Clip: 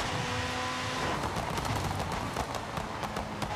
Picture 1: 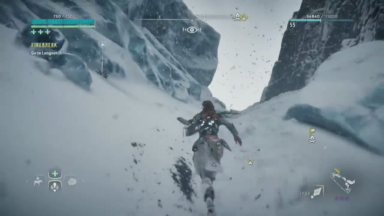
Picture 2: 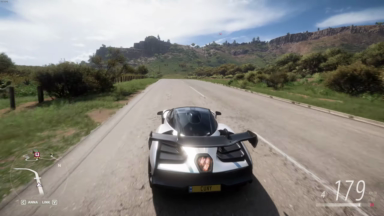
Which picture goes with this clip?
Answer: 2